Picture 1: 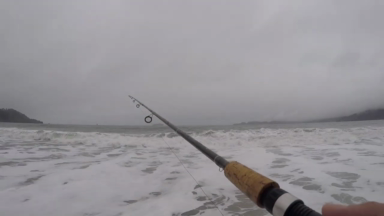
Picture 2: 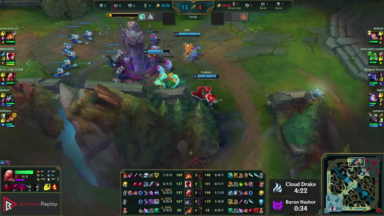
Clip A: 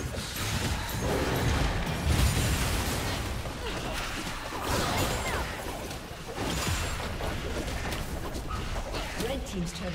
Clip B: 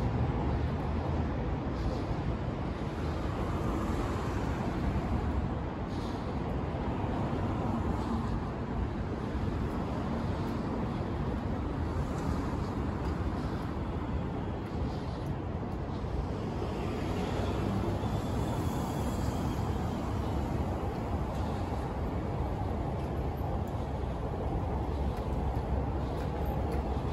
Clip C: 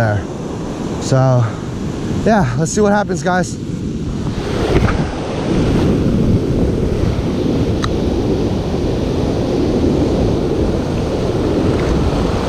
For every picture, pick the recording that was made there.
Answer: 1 C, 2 A